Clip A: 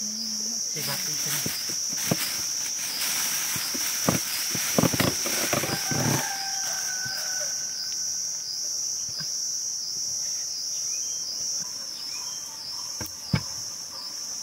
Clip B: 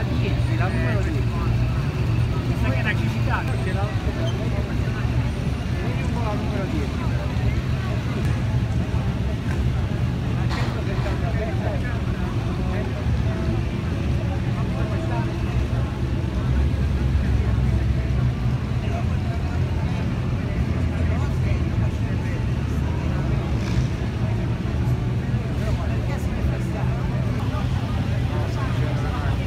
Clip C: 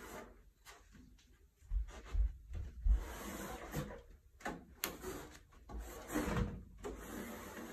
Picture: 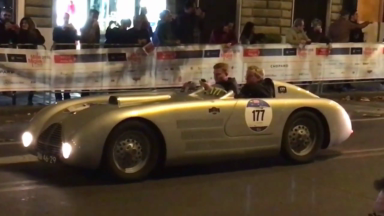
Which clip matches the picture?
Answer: B